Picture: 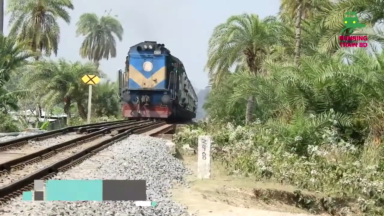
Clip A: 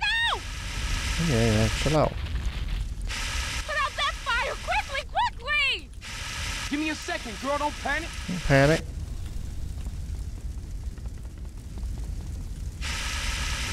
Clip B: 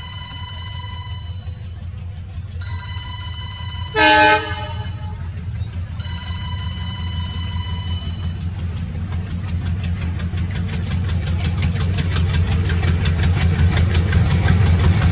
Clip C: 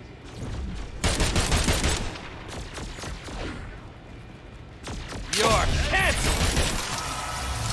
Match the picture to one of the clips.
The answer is B